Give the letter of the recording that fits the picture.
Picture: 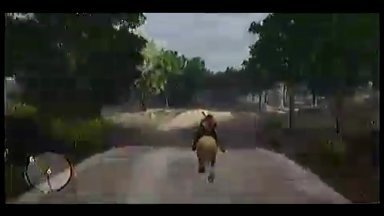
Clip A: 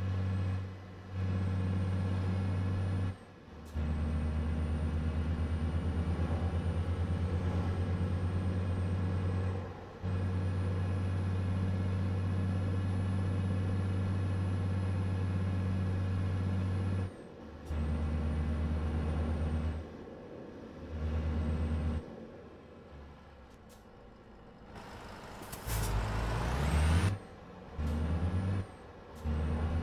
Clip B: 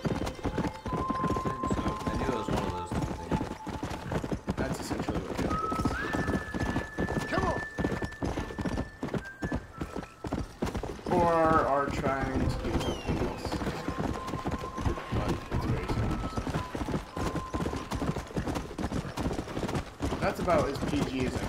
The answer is B